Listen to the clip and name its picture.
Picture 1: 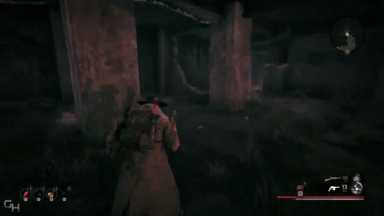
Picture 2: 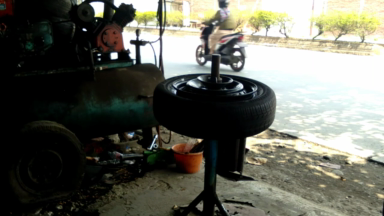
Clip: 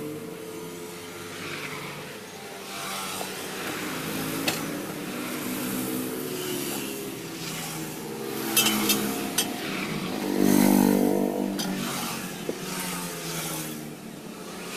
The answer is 2